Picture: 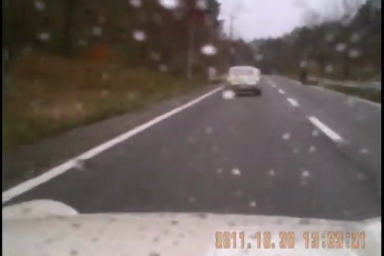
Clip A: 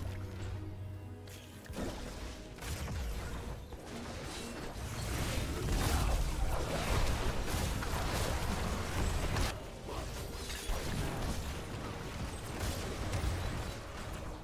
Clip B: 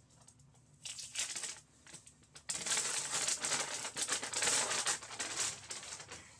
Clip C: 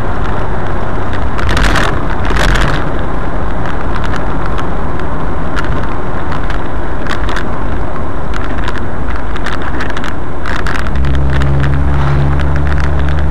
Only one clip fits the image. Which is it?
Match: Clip C